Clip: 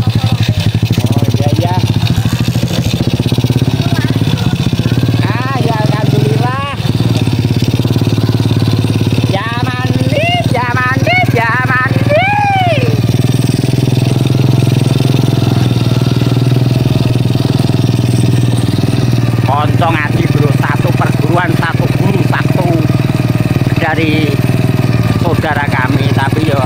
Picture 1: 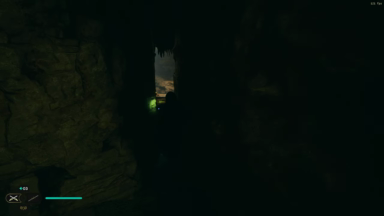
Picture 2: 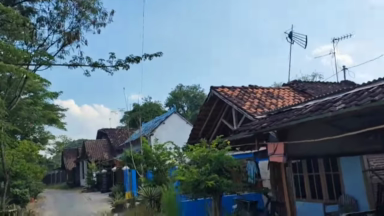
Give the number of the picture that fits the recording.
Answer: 2